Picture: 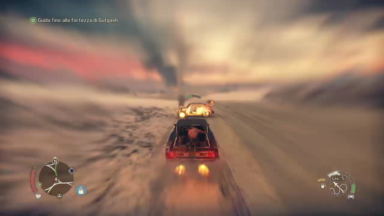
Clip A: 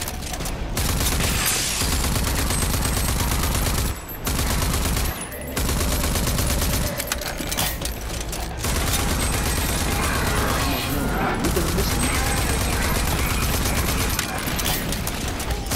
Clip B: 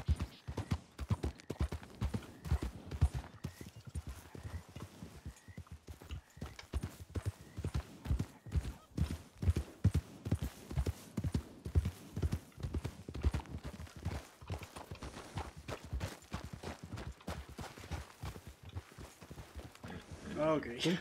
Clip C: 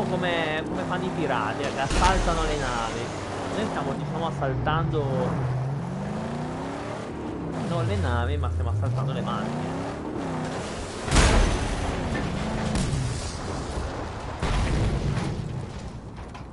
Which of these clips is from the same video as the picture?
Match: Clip C